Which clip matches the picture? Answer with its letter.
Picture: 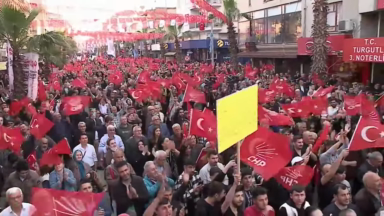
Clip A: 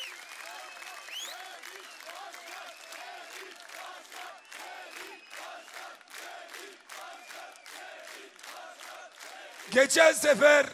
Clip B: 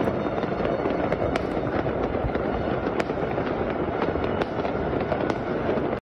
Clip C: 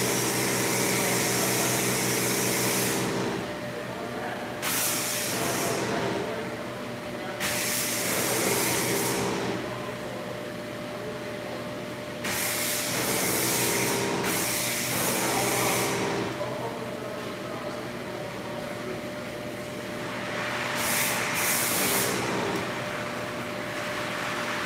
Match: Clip A